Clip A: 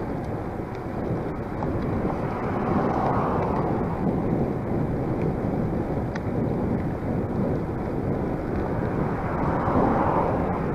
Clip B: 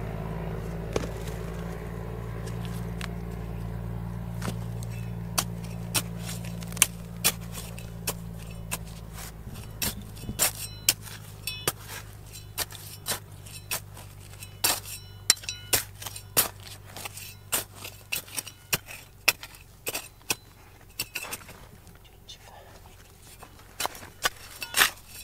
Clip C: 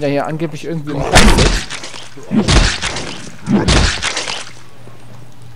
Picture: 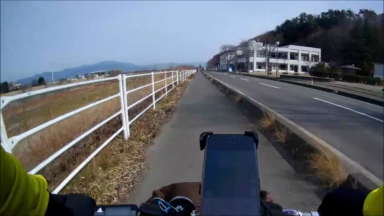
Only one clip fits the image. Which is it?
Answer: A